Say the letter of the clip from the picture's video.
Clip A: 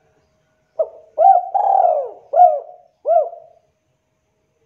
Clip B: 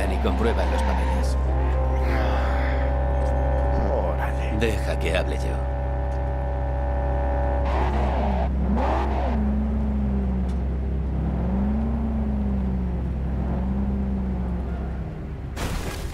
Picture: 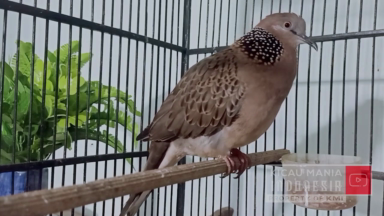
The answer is A